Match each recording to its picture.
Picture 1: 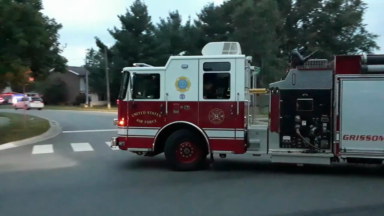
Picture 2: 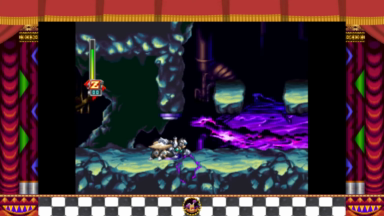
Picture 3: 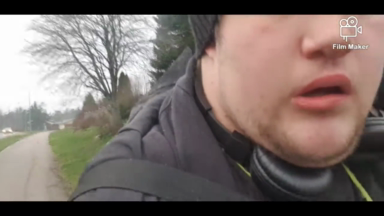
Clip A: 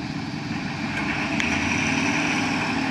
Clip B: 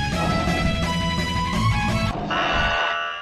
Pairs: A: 1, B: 2